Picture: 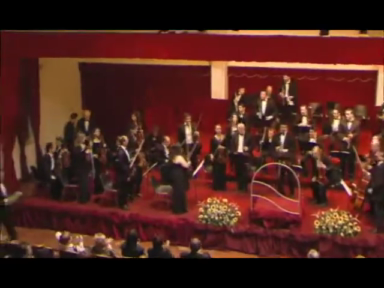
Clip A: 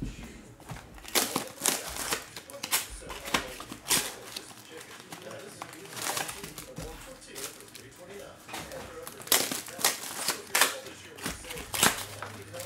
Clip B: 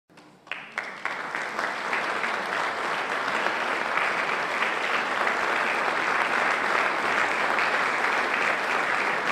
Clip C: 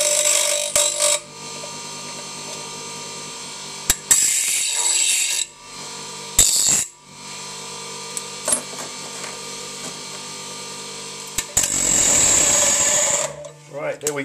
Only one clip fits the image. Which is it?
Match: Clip B